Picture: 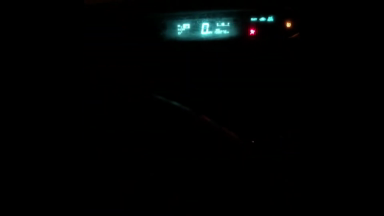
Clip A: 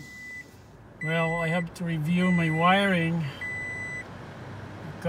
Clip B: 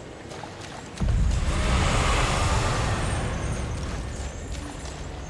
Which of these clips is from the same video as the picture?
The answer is A